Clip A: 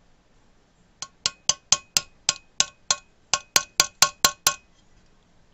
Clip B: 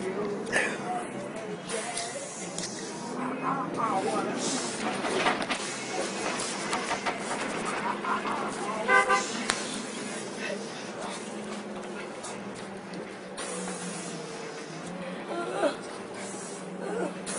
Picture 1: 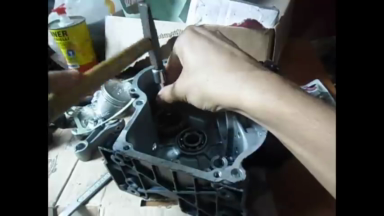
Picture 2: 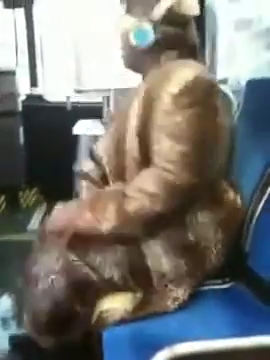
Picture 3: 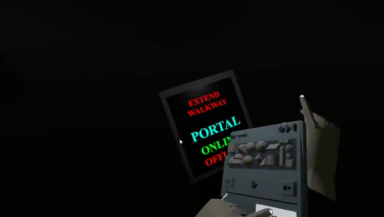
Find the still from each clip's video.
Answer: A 1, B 2